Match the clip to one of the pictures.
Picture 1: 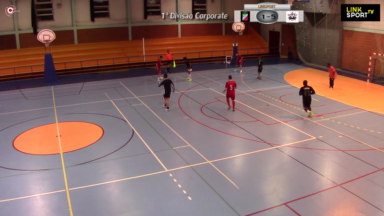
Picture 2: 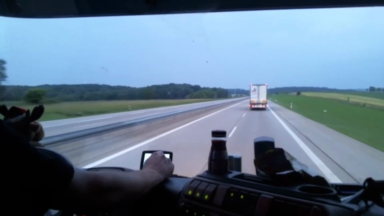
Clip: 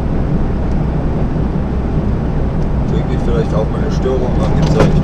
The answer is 2